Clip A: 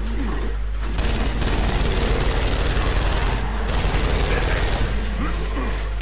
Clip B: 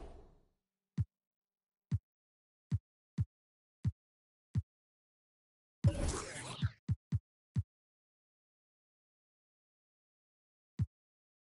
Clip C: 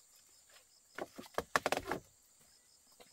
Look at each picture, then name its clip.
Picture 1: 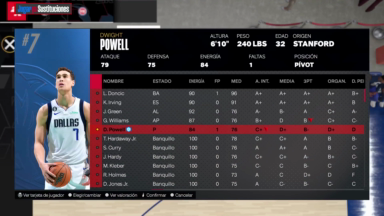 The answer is B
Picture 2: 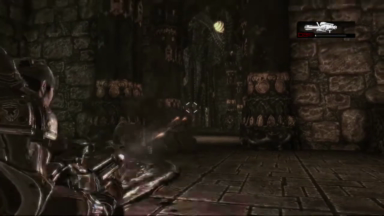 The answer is A